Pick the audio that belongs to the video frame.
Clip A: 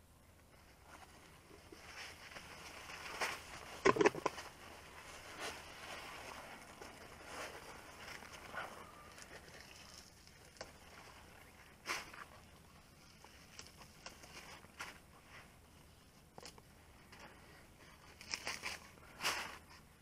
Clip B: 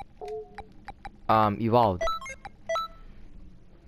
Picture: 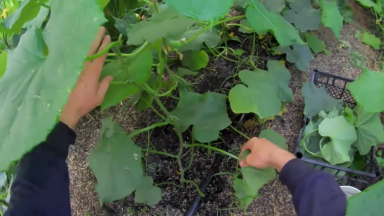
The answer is A